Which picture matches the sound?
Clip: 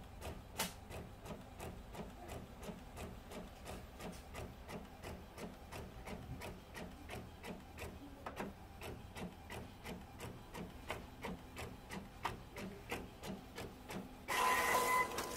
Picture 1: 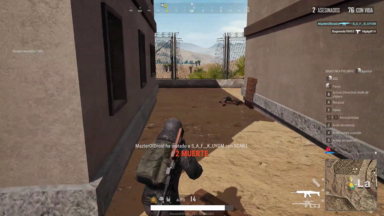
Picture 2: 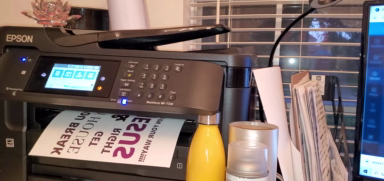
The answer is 2